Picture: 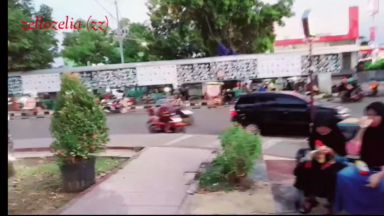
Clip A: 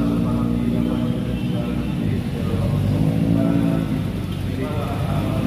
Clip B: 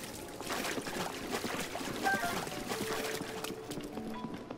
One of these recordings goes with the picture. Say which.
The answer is A